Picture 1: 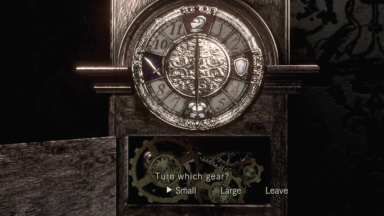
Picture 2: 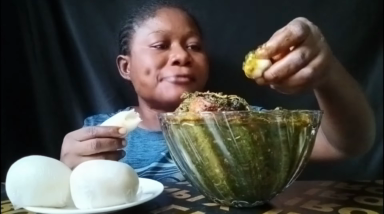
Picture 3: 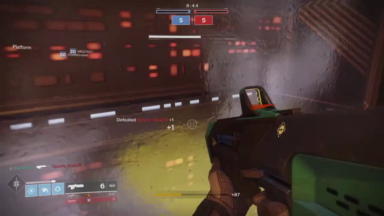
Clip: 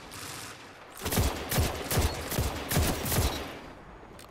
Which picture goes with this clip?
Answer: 3